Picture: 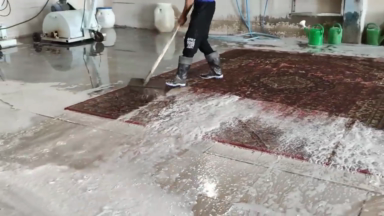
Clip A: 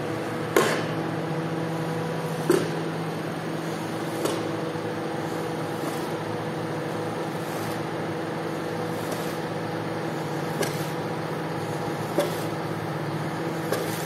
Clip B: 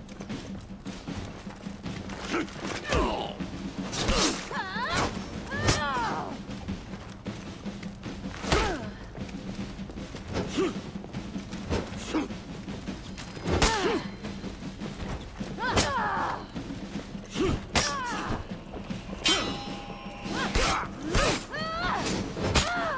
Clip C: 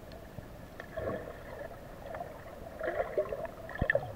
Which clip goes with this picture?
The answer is A